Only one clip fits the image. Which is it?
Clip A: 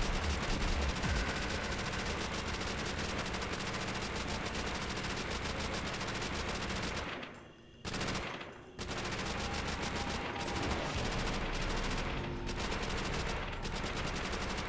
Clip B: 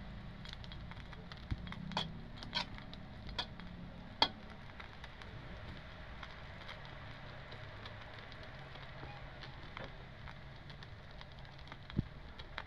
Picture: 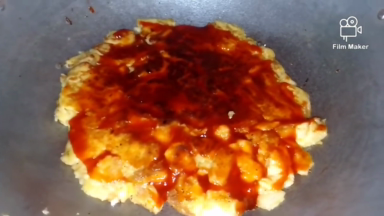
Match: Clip B